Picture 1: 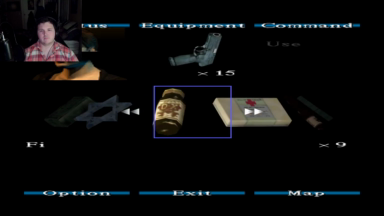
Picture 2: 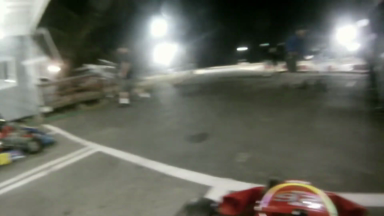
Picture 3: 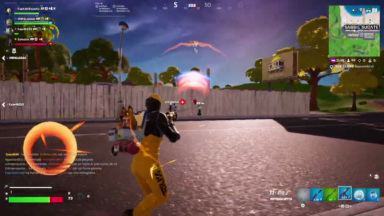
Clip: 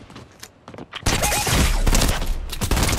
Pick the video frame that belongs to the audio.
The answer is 3